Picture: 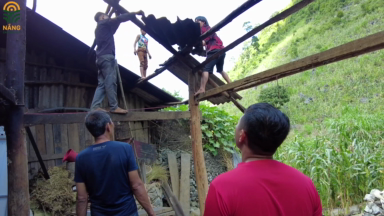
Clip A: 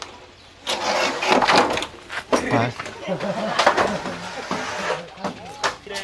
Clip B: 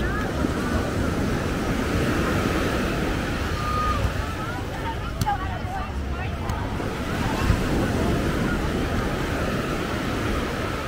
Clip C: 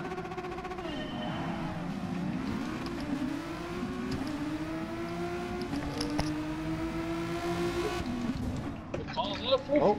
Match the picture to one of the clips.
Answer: A